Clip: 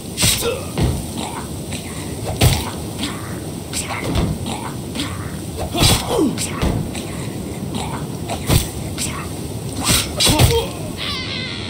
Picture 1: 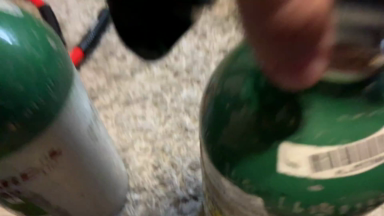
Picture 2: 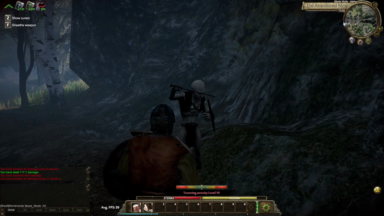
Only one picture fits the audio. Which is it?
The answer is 2